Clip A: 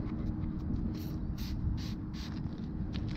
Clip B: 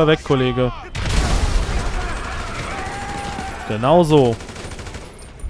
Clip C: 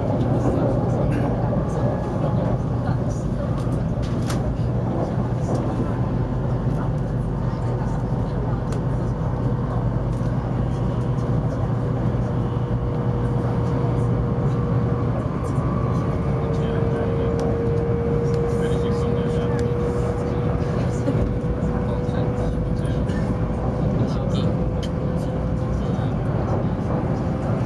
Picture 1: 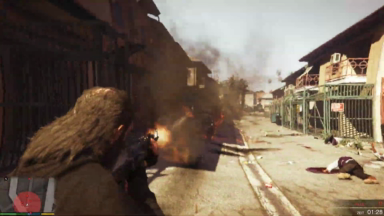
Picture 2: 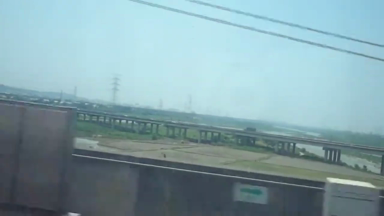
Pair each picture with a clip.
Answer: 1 B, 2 C